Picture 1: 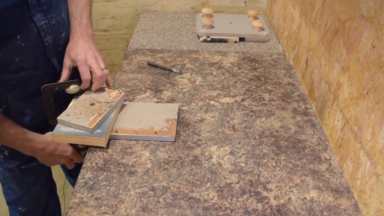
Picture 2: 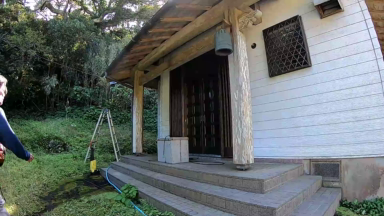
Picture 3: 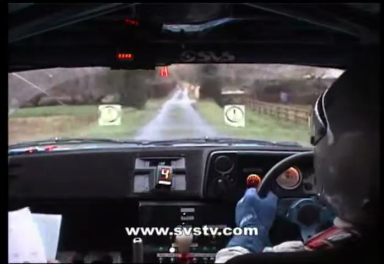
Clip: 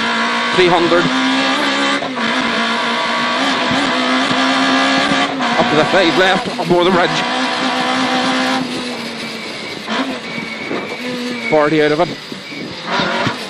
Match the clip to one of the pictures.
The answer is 3